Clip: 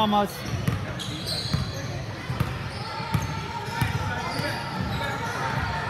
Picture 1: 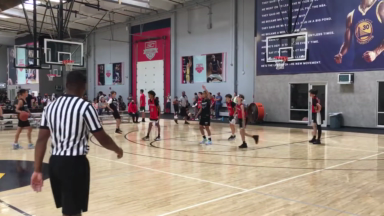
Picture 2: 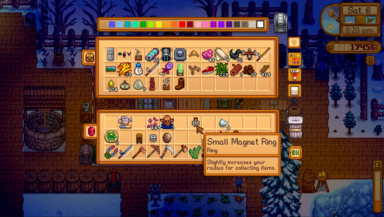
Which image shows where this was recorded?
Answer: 1